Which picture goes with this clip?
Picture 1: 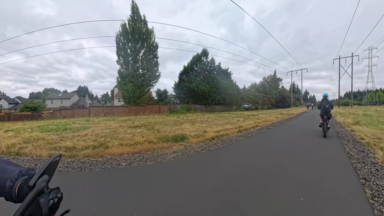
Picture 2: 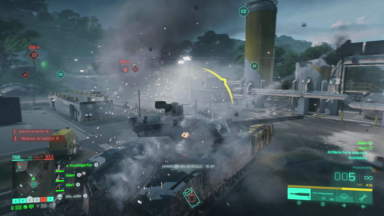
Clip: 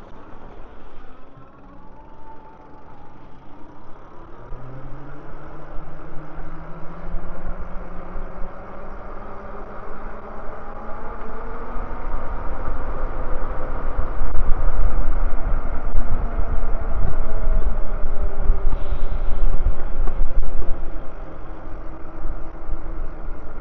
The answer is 1